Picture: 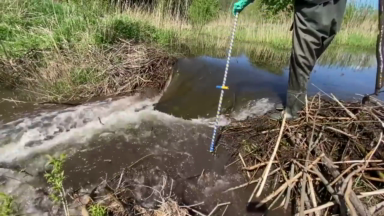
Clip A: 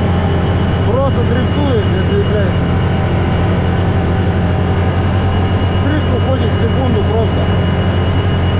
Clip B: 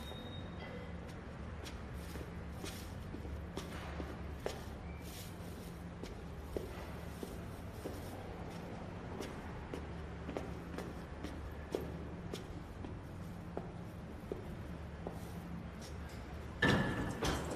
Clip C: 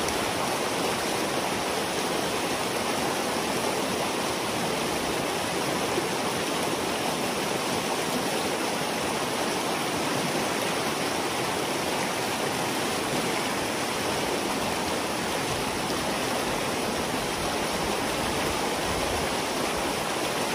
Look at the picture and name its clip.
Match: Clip C